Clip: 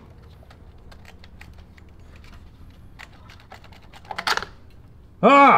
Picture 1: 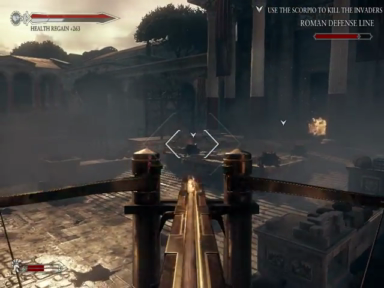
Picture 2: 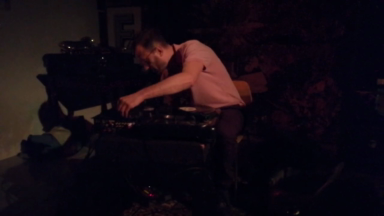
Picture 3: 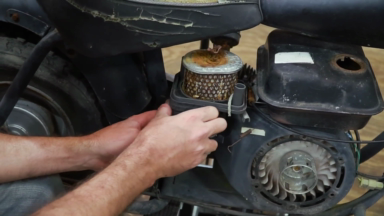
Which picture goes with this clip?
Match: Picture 3